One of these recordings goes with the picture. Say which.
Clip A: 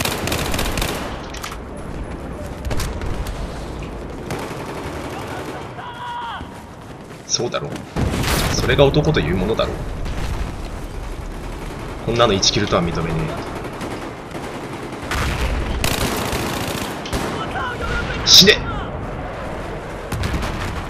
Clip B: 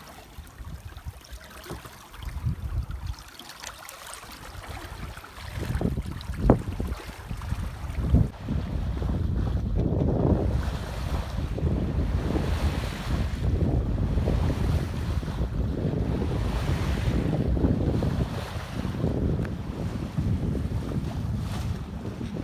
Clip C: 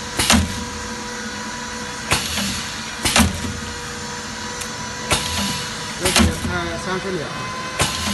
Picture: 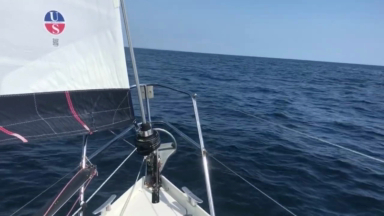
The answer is B